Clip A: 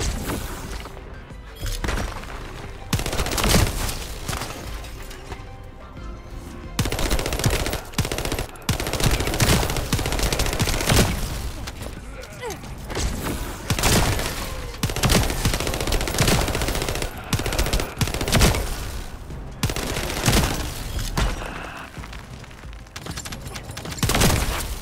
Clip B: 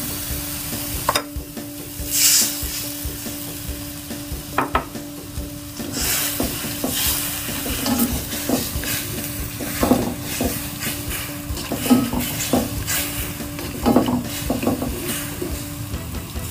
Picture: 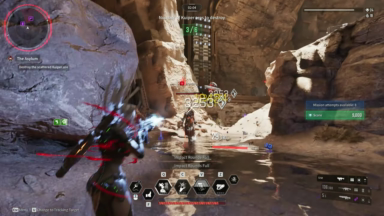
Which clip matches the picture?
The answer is A